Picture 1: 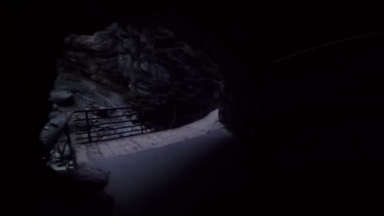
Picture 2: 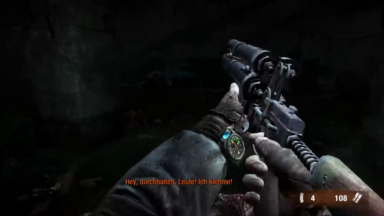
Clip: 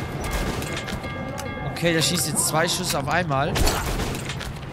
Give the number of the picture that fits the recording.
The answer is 2